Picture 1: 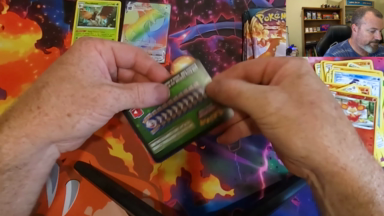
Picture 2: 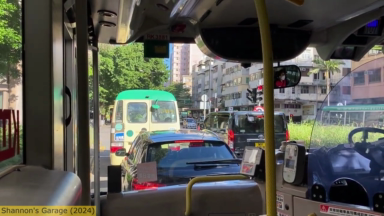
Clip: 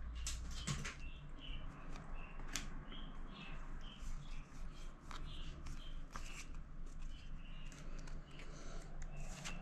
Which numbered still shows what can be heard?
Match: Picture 1